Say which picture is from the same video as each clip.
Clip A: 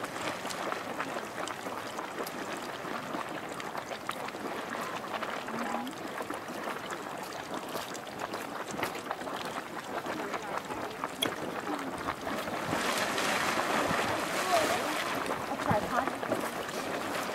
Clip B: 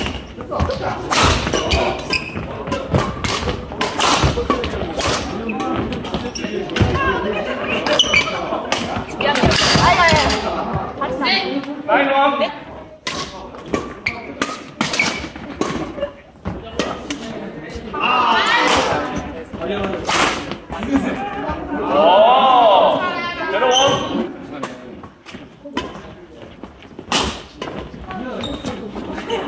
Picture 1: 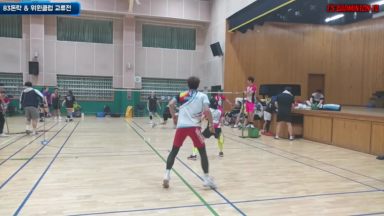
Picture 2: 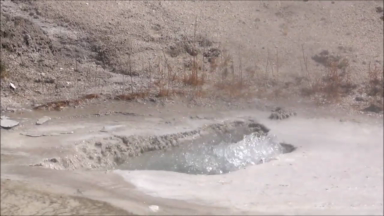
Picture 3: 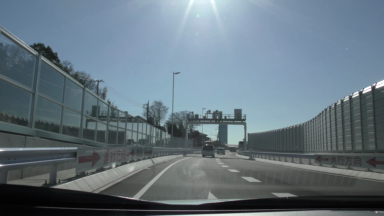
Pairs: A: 2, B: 1